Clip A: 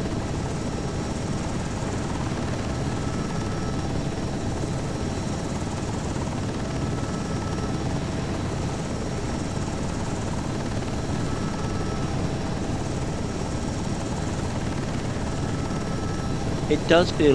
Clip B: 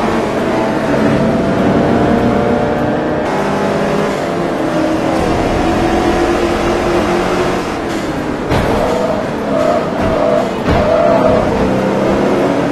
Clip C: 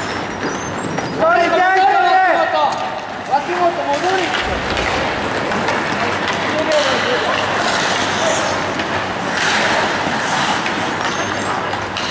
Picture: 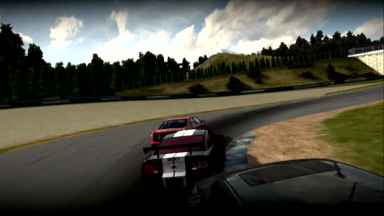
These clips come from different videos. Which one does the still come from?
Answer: B